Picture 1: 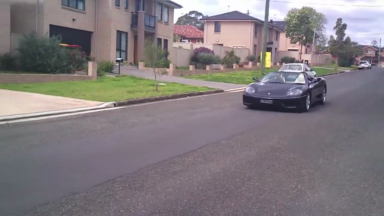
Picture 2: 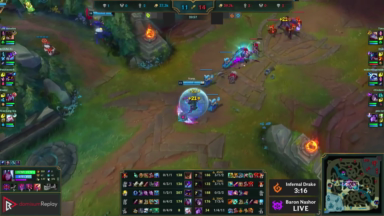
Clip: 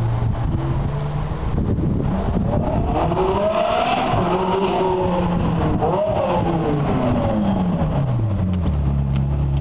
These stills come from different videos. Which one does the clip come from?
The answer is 1